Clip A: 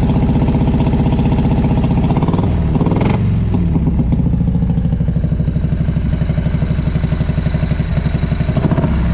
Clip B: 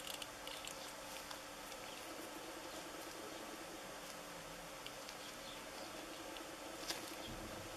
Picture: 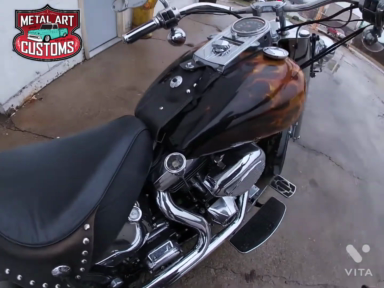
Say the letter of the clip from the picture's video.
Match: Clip A